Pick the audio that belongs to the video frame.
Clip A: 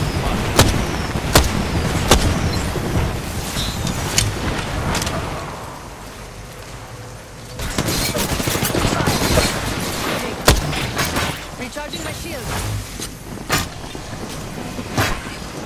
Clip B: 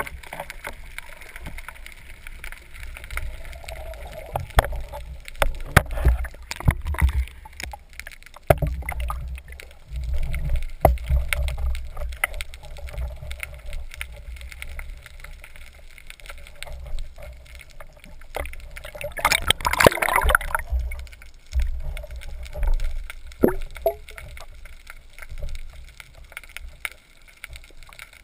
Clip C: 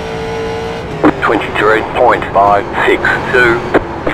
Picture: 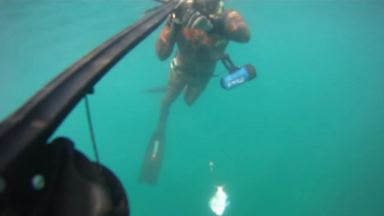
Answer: B